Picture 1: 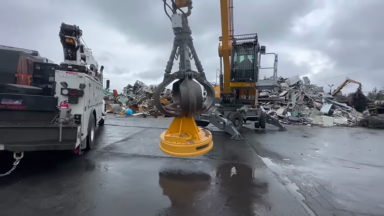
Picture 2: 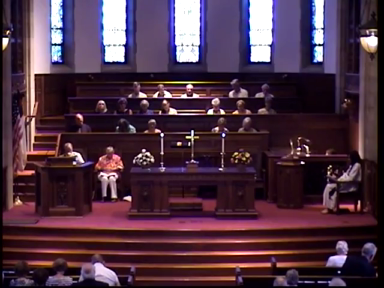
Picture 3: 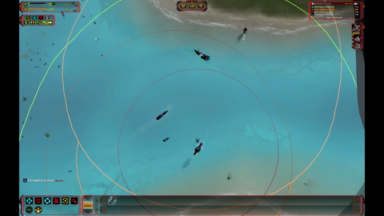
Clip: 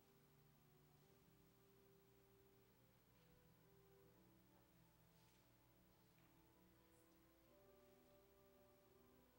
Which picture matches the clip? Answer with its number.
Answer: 2